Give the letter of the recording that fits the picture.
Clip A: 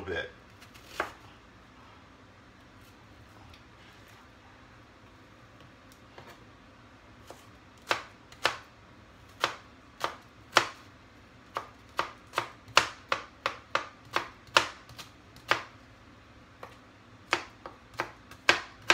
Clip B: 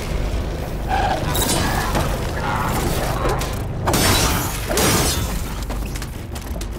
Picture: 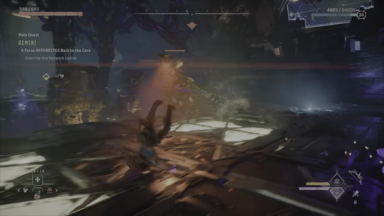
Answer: B